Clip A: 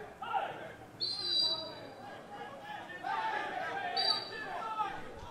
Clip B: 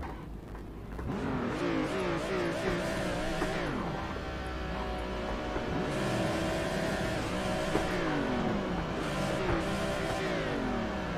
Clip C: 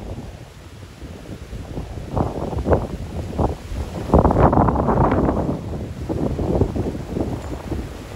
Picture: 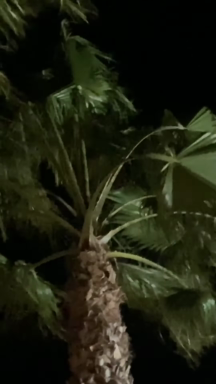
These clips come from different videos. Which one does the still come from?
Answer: C